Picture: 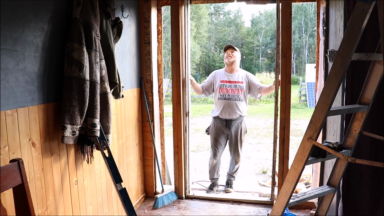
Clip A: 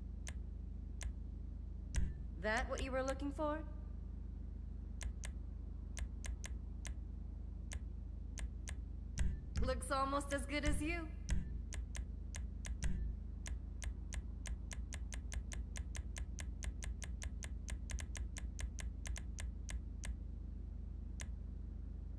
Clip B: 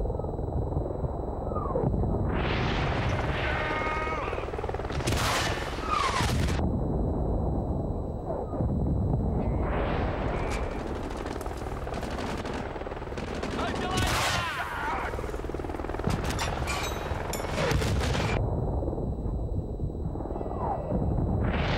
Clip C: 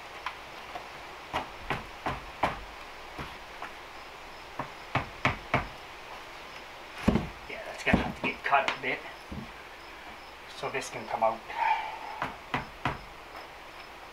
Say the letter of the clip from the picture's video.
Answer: C